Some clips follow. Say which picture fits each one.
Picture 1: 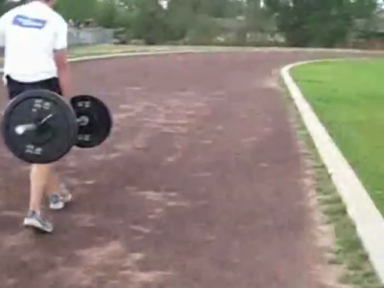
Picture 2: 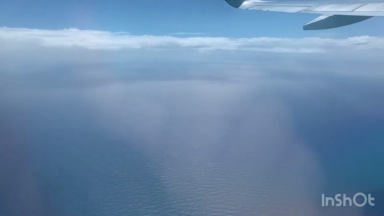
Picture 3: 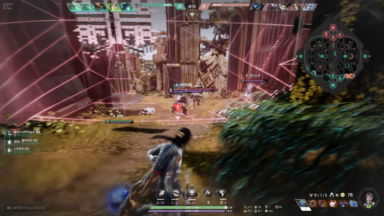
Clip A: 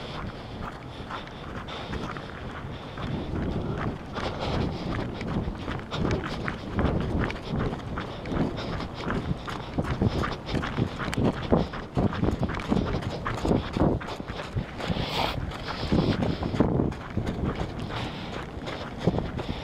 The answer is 1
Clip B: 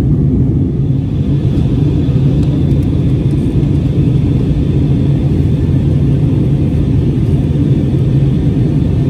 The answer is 2